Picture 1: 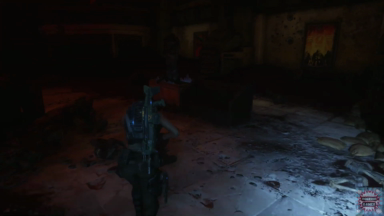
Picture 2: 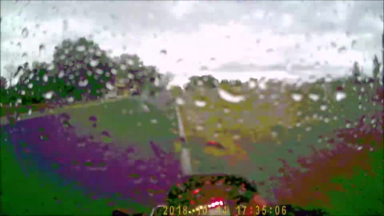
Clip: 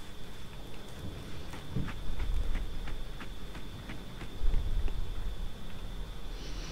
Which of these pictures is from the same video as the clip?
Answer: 1